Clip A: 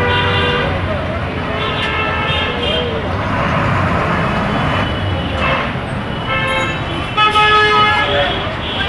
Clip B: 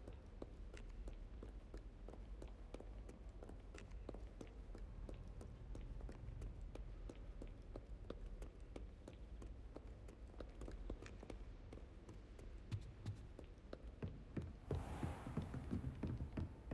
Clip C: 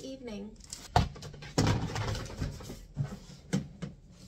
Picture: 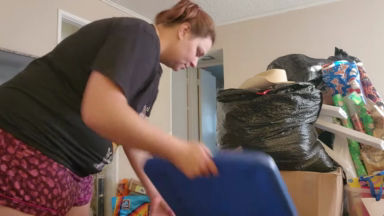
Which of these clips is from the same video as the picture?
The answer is C